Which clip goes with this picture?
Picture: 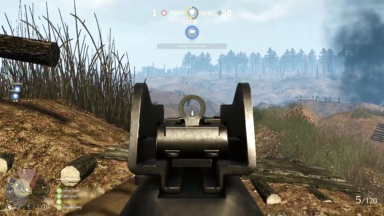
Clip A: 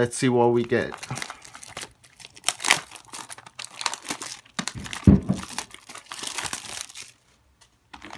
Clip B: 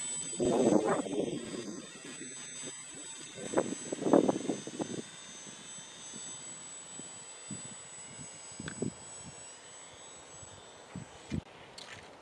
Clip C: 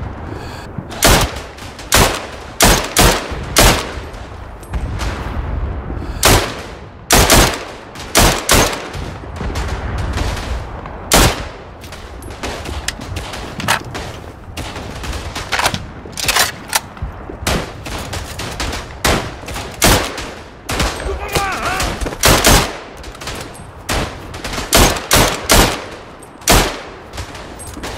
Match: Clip C